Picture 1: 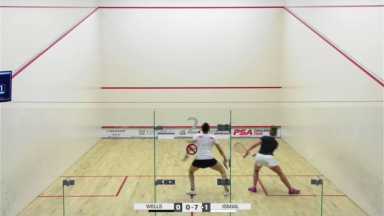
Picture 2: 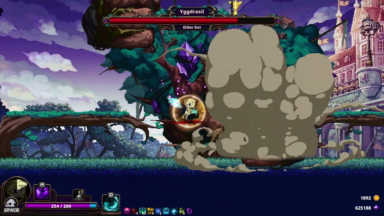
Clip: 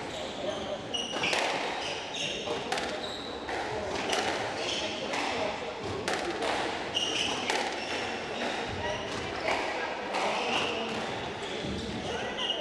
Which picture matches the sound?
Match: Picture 1